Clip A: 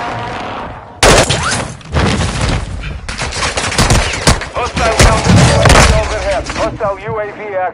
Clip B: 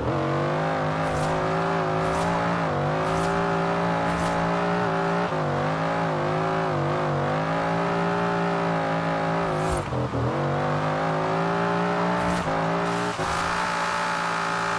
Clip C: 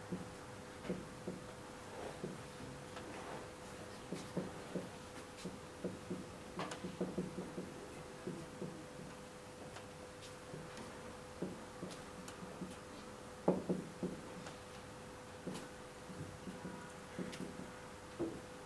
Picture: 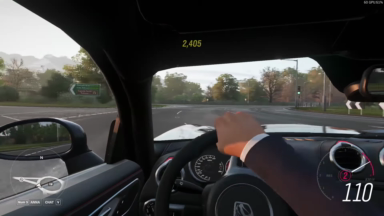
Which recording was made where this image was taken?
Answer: B